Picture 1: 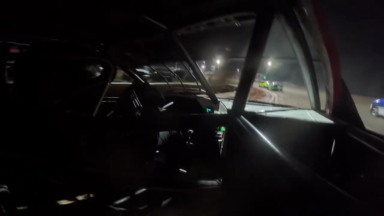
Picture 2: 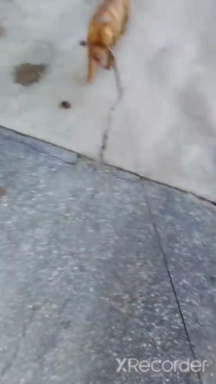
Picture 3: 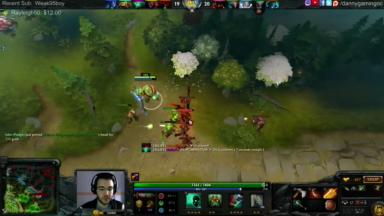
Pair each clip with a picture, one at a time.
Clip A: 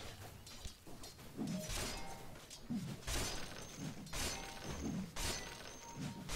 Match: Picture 3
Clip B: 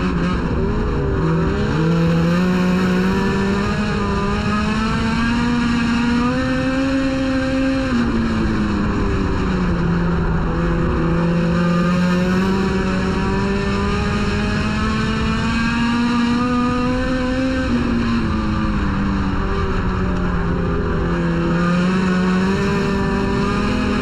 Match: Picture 1